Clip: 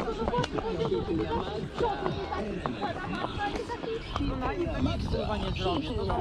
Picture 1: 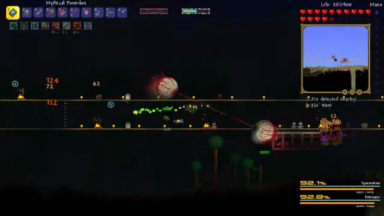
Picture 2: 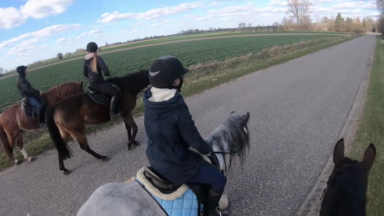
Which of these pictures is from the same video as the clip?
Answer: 2